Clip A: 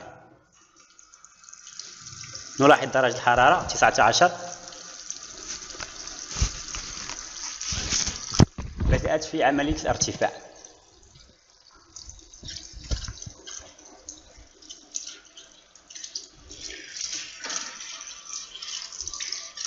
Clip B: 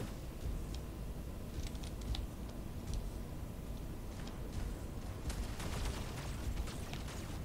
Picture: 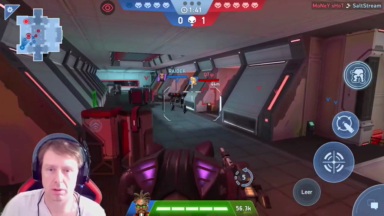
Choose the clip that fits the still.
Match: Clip B